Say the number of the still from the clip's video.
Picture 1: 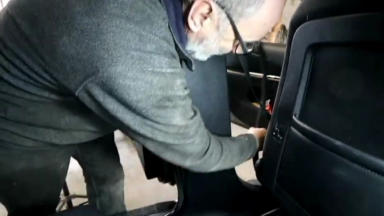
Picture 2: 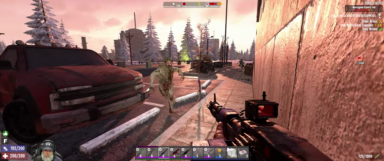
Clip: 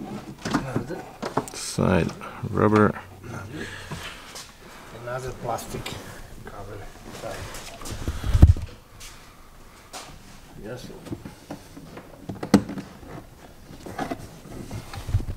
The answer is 1